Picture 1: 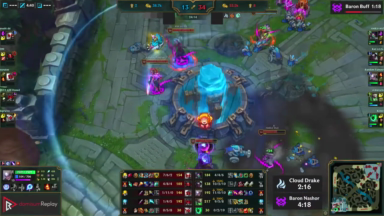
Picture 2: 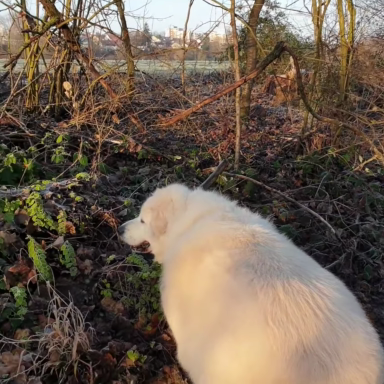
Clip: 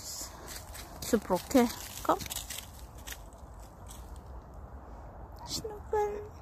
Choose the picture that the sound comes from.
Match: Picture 2